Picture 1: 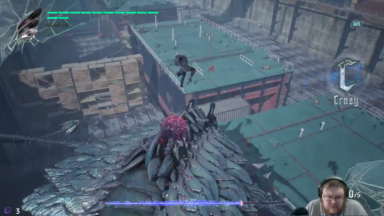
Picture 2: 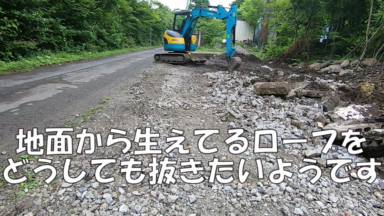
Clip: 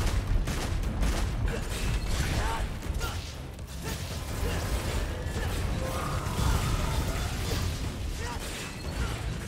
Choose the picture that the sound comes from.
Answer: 1